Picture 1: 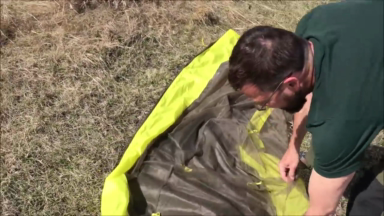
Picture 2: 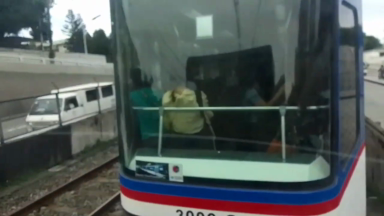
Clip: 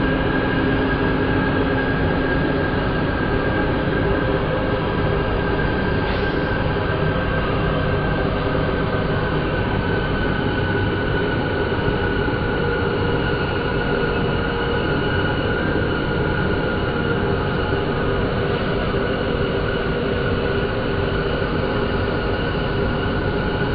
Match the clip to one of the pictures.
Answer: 2